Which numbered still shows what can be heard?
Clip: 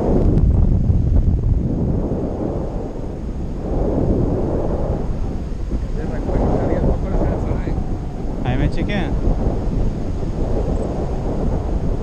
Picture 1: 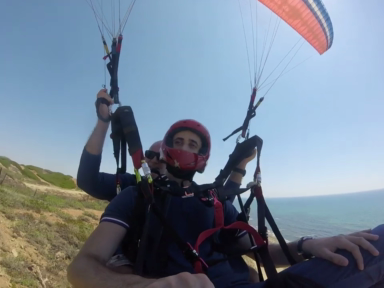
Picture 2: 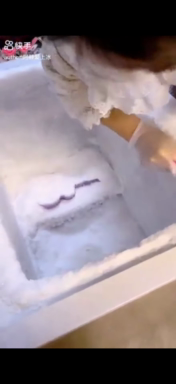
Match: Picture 1